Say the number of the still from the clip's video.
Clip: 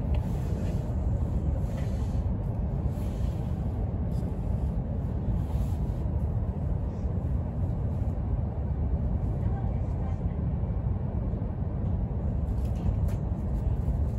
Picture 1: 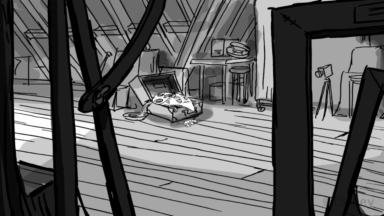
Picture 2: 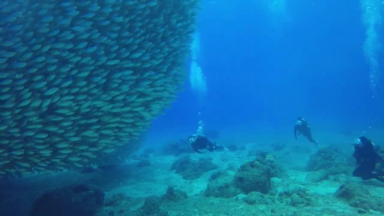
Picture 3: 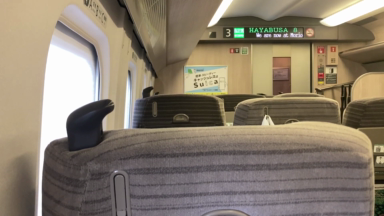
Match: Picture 3